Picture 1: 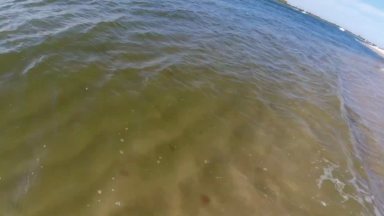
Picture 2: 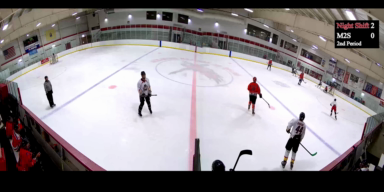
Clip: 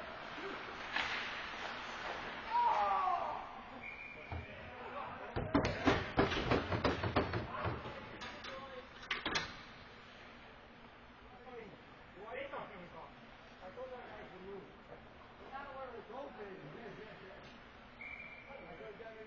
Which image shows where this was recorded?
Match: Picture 2